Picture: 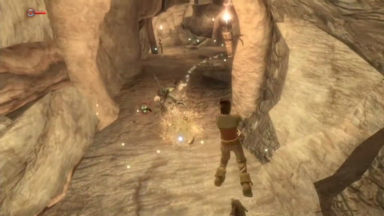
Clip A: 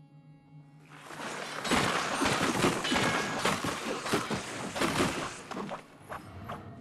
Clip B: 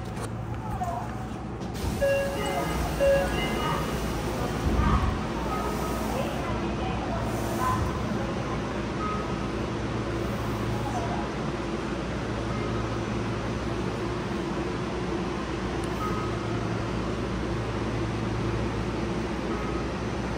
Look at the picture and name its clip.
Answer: A